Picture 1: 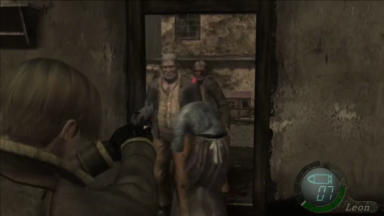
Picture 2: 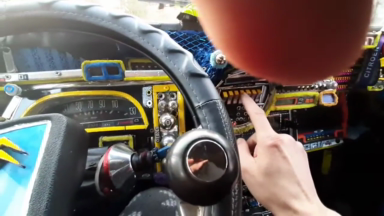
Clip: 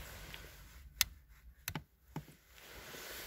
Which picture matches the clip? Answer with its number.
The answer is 2